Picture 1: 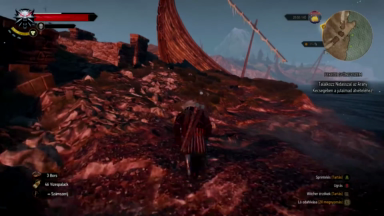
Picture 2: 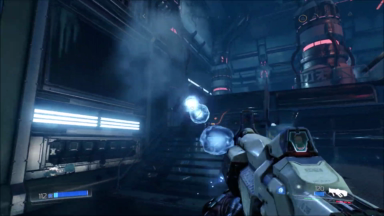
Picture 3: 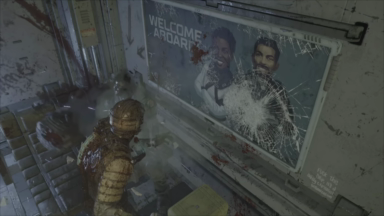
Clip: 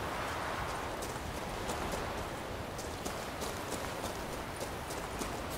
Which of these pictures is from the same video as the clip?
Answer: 1